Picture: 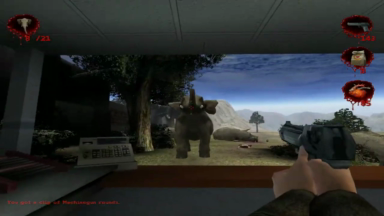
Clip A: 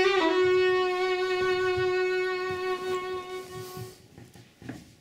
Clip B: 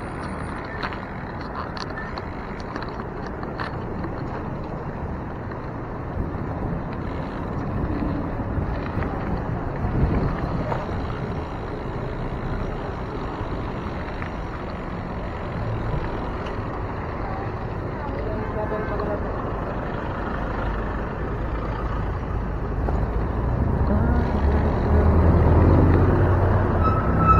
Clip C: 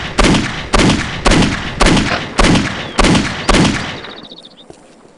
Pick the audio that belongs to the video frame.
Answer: C